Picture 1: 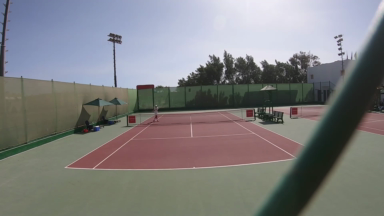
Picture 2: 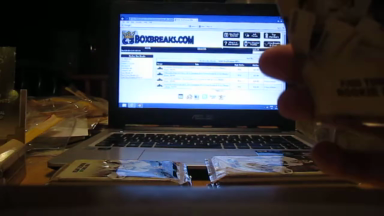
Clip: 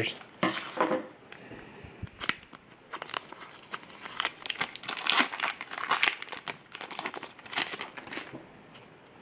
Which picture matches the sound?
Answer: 2